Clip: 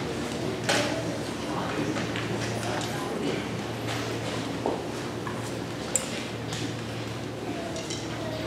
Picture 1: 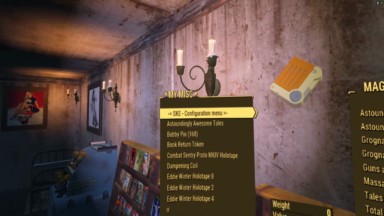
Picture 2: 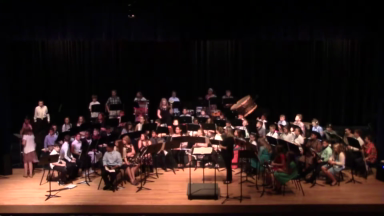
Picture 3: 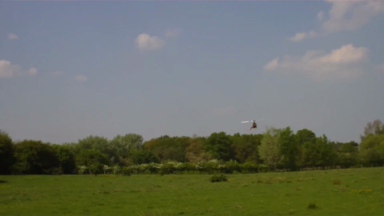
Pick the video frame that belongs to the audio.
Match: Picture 2